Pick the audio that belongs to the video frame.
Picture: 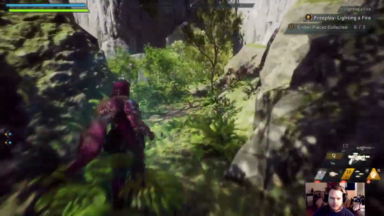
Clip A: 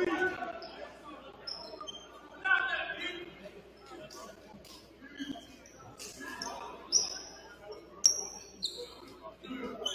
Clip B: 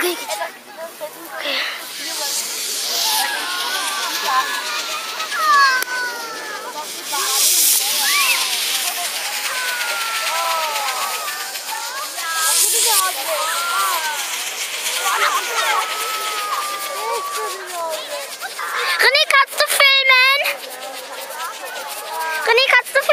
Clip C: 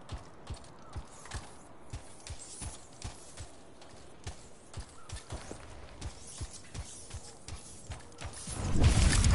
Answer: C